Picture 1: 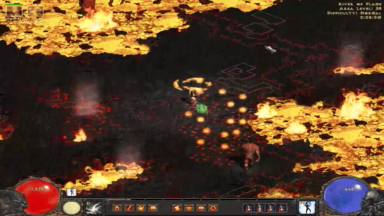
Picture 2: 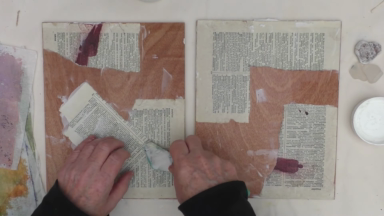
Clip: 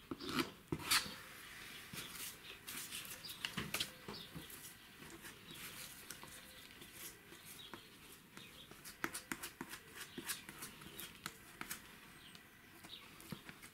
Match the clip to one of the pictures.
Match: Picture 2